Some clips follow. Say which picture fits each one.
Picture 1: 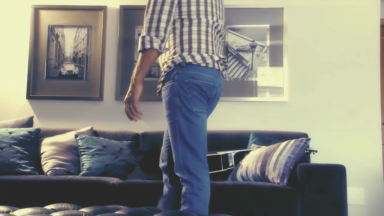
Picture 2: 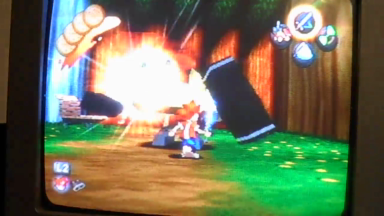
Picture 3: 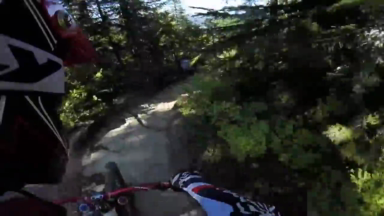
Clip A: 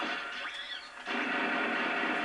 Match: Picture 2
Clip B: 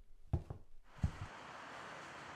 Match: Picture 1